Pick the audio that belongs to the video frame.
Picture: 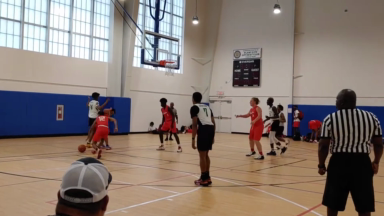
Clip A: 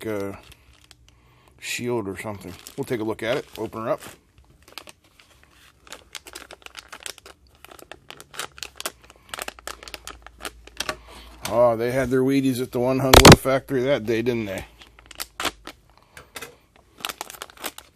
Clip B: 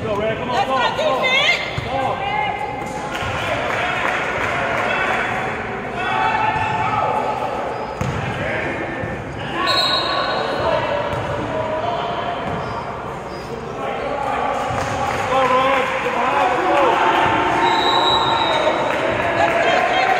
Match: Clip B